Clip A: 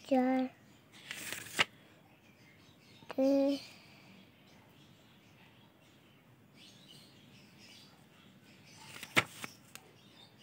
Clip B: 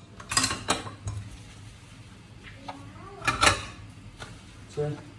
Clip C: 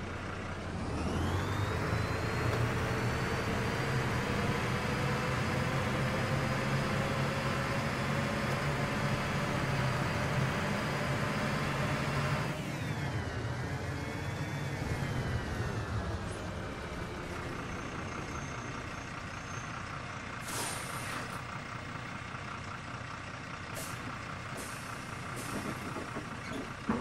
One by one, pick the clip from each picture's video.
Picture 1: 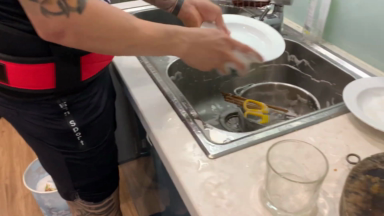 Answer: B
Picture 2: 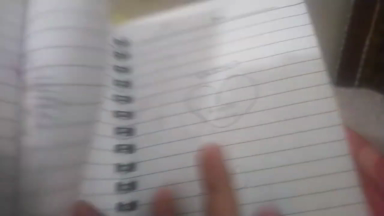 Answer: A